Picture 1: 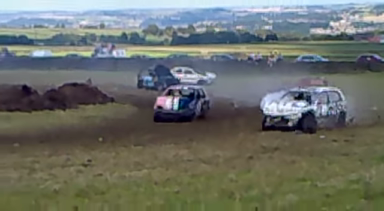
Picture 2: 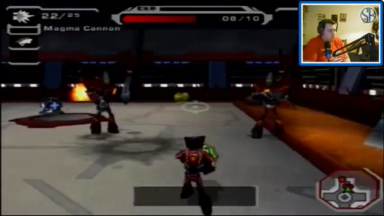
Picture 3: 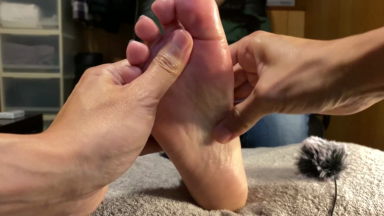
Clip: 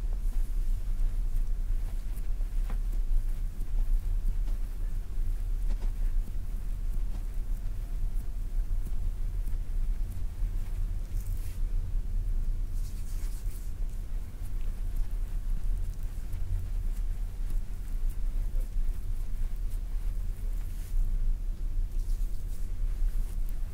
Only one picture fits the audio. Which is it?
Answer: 3